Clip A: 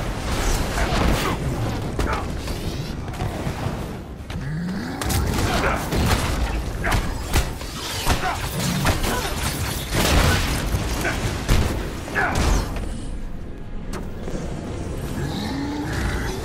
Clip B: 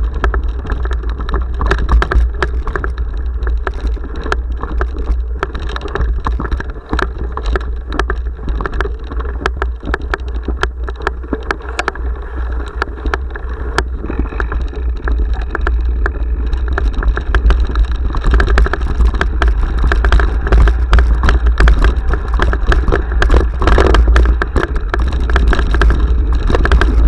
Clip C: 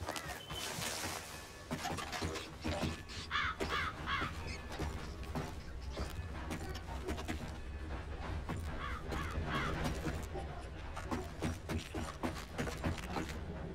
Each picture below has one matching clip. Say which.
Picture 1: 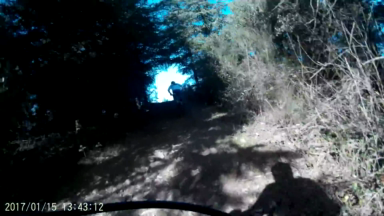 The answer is B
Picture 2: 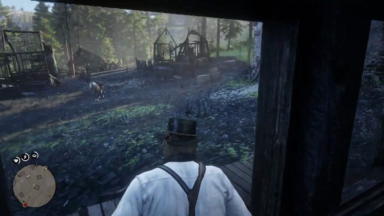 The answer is C